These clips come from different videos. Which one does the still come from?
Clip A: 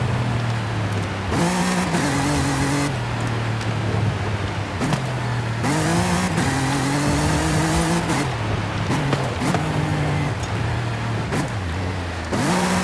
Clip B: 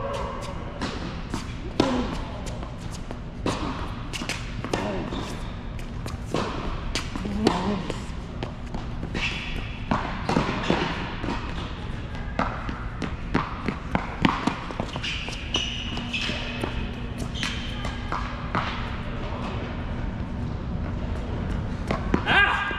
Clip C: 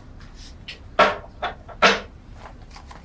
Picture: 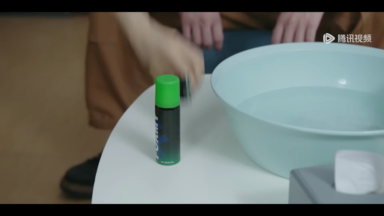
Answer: C